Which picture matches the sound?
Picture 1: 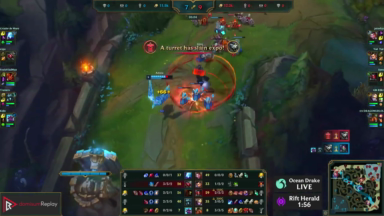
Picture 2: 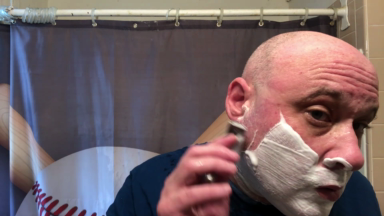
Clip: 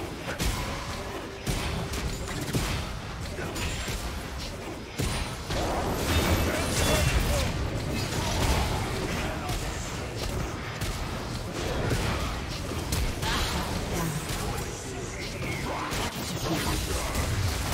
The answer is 1